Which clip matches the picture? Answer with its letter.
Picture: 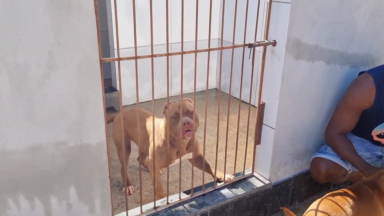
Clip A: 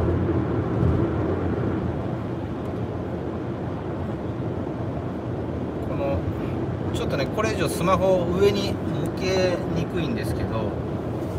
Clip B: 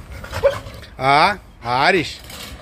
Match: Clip B